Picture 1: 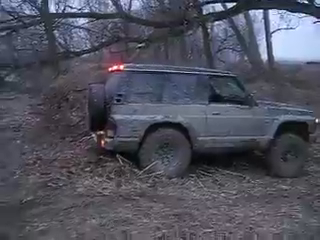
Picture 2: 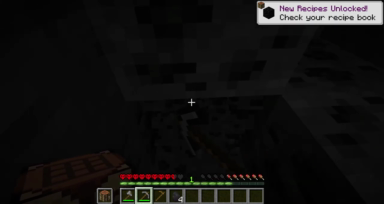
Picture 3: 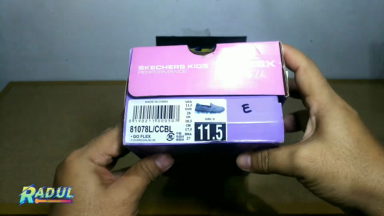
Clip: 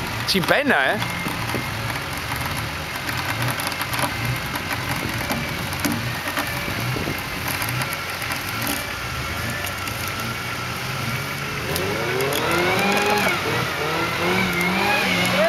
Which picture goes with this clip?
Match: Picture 1